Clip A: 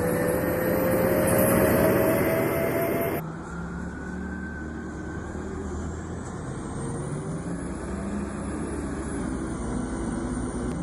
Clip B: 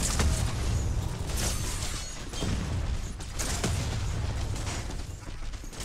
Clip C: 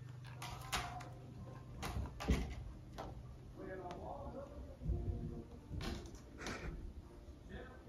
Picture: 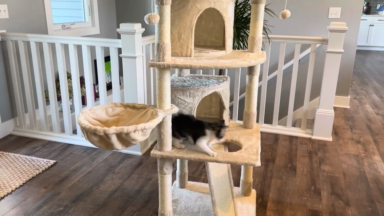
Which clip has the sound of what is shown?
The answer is C